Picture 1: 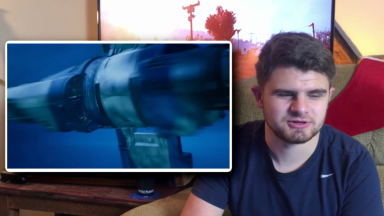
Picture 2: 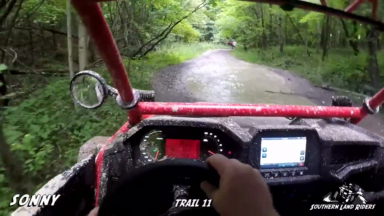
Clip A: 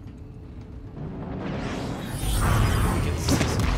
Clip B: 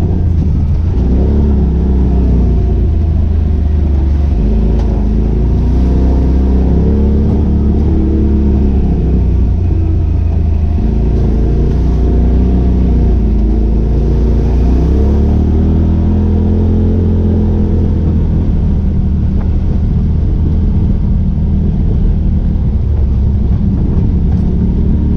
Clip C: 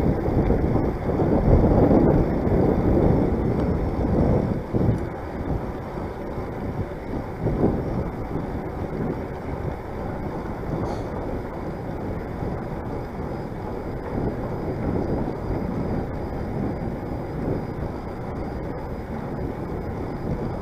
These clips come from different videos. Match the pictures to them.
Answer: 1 A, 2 B